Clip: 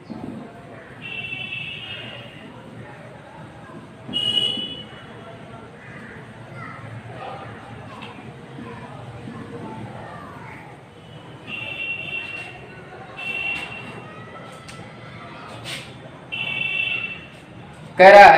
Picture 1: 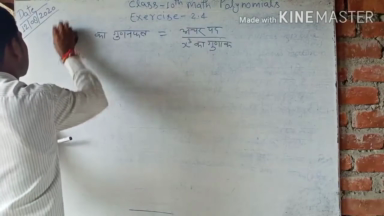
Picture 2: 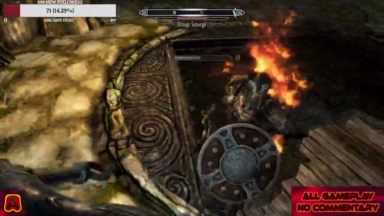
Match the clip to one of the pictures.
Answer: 1